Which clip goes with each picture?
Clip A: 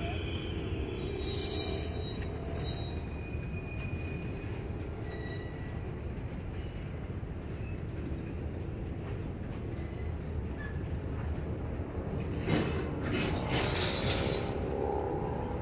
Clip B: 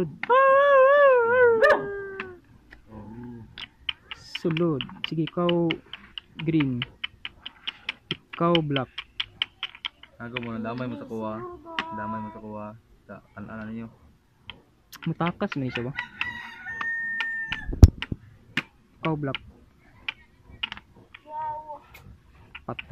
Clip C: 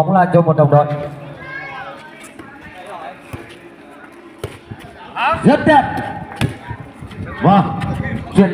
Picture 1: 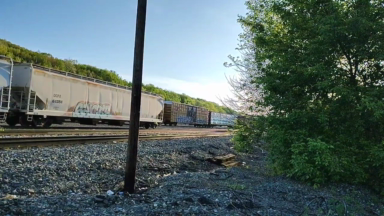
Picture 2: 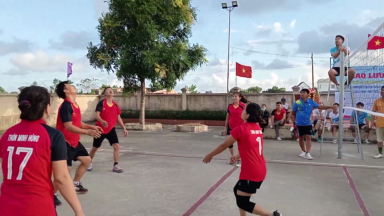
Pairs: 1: A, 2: C